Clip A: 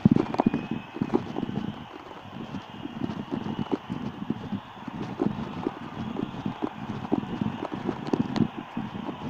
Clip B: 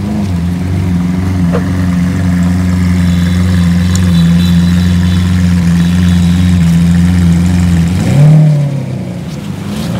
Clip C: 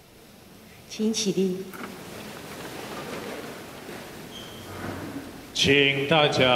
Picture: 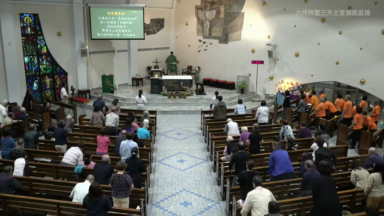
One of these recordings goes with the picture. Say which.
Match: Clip C